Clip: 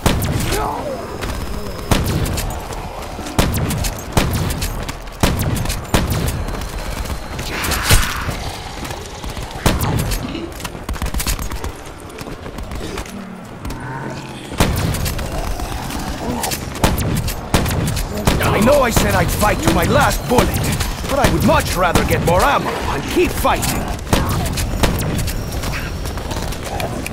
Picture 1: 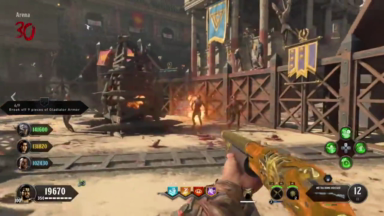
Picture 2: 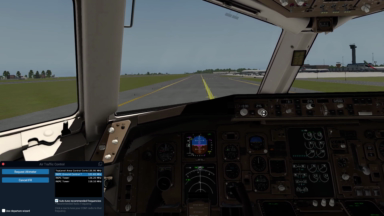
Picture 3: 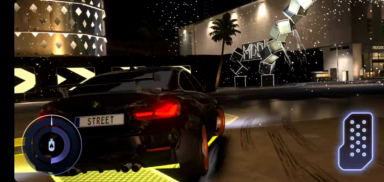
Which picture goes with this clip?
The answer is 1